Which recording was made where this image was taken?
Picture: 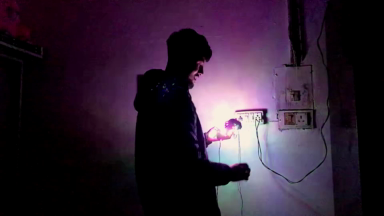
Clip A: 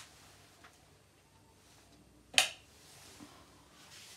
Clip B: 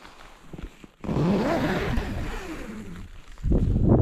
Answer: A